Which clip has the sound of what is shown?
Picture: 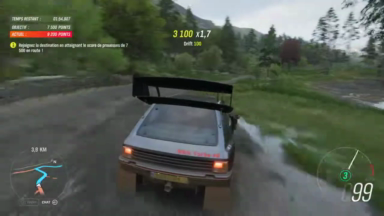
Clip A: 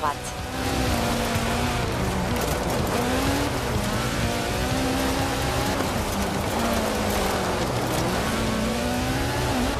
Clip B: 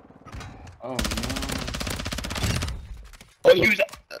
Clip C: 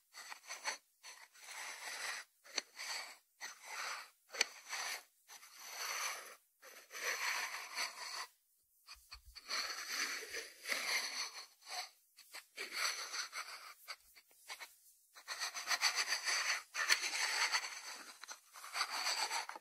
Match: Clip A